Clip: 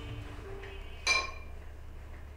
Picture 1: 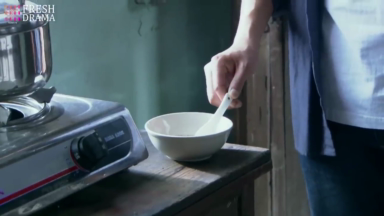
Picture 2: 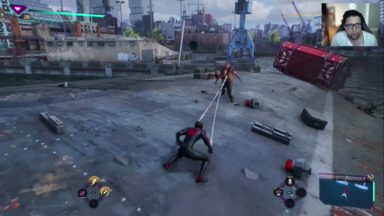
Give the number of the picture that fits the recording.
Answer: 1